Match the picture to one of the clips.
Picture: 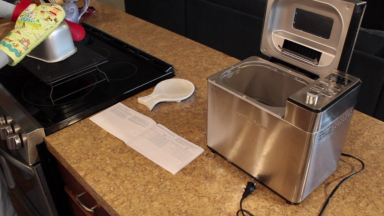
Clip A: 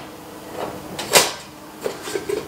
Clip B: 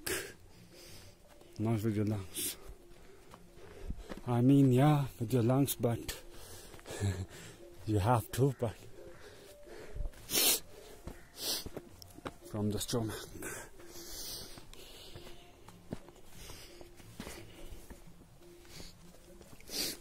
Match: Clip A